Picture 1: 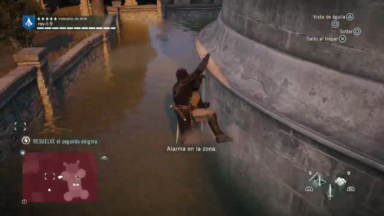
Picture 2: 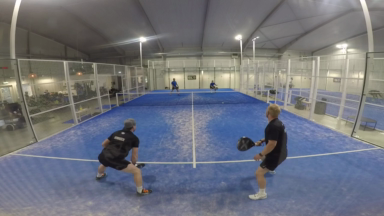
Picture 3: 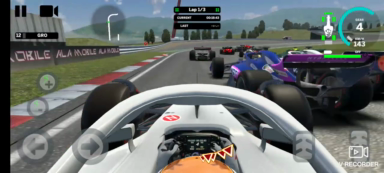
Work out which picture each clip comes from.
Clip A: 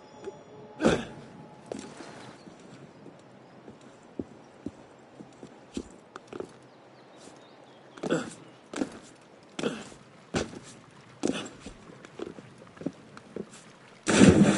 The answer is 1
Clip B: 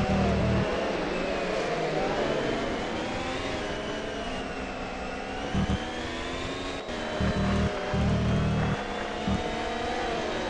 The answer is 3